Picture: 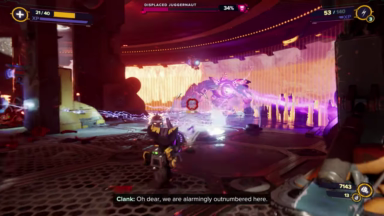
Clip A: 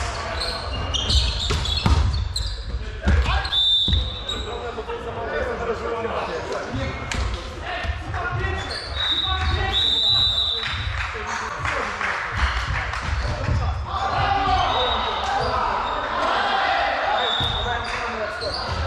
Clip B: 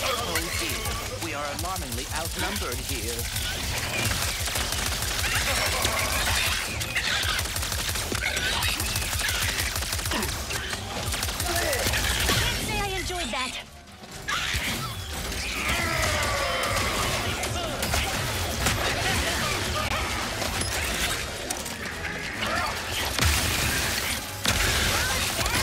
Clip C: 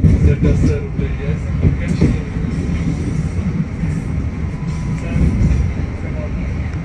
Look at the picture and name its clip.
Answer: B